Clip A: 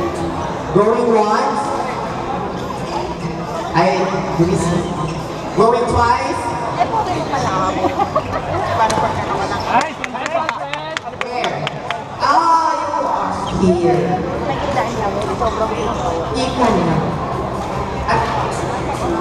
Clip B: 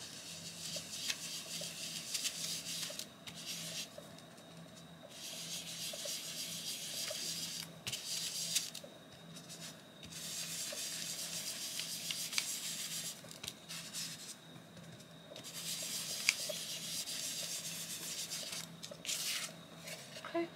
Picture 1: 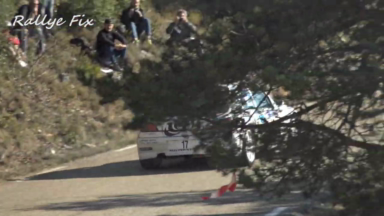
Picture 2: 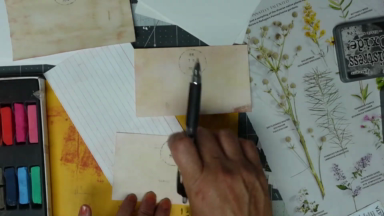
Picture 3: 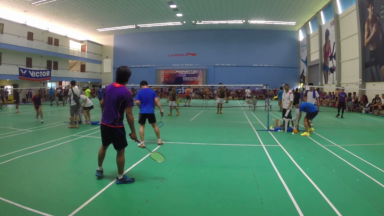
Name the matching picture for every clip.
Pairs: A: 3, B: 2